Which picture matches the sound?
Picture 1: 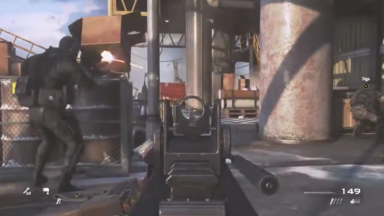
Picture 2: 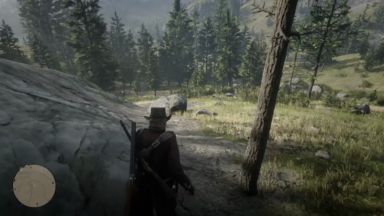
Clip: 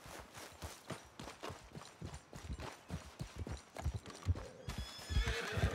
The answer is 2